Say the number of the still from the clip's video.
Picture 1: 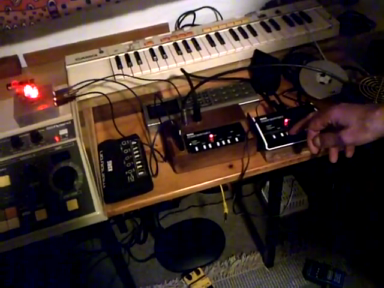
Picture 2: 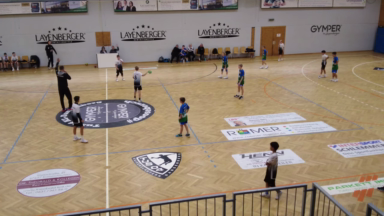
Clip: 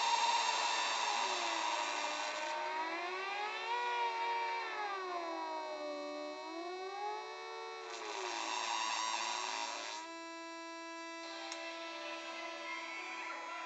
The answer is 1